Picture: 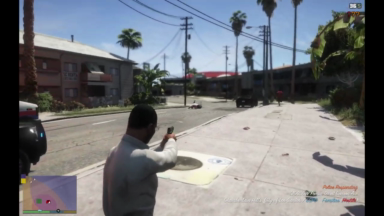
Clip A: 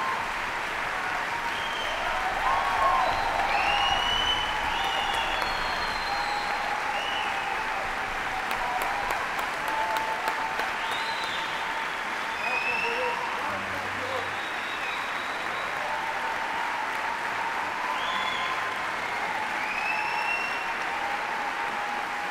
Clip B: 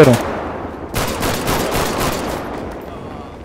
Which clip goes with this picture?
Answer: B